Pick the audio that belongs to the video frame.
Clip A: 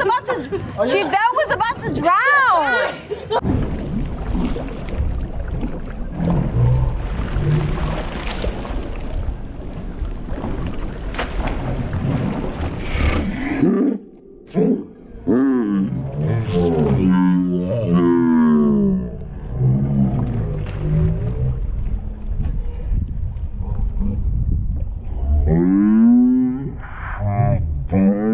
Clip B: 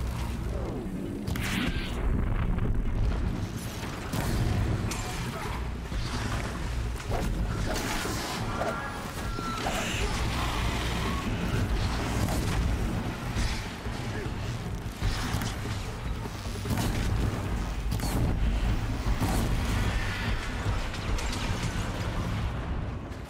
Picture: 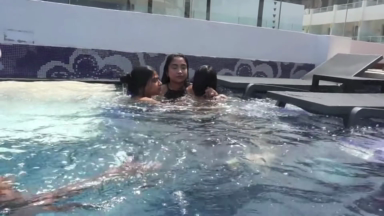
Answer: A